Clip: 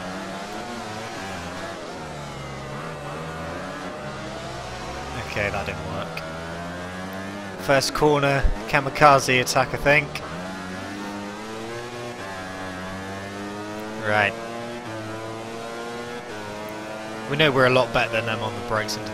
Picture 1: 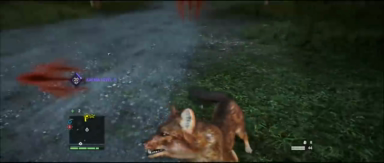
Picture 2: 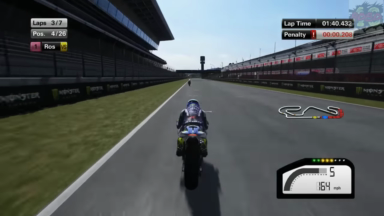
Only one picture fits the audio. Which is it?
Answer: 2